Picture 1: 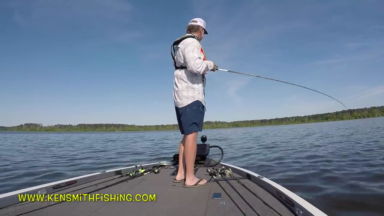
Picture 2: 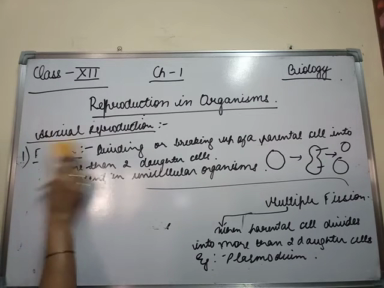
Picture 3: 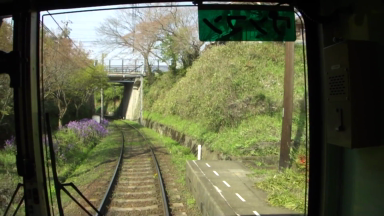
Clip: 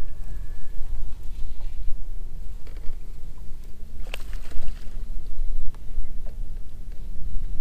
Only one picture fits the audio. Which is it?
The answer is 1